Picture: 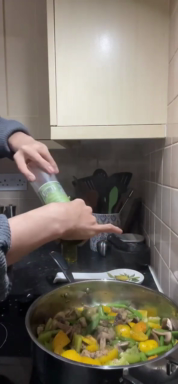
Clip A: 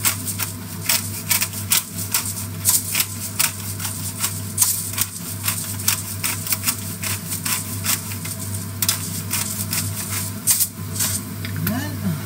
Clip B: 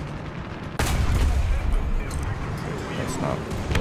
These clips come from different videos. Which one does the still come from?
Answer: A